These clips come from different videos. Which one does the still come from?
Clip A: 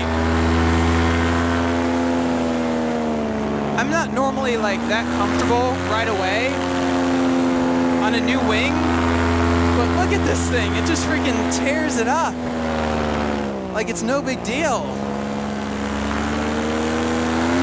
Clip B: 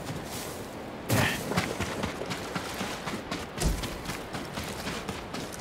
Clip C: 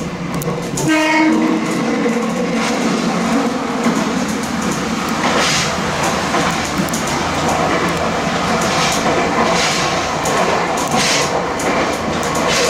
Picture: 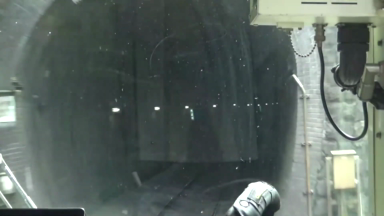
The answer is C